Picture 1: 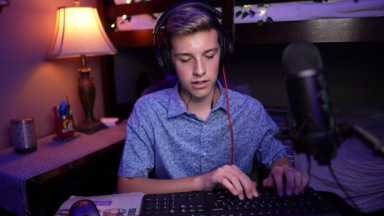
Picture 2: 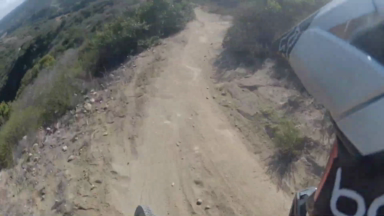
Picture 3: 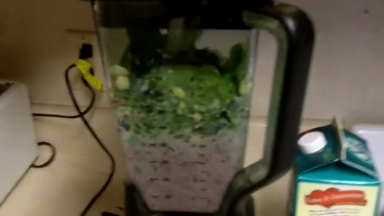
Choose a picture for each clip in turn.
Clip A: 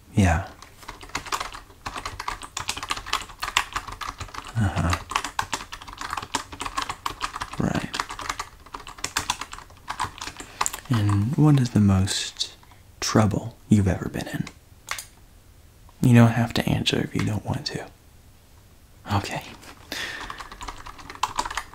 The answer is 1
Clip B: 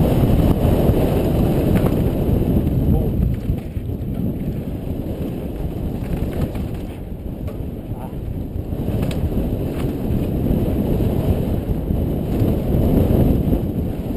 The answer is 2